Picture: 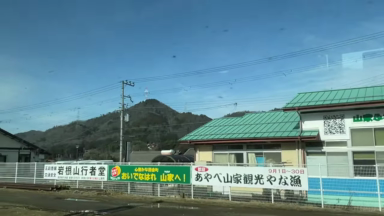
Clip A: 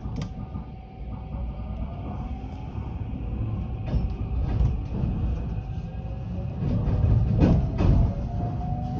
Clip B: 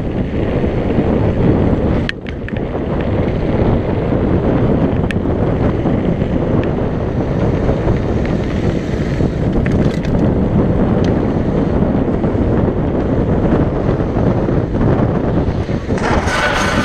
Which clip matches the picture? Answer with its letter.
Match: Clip A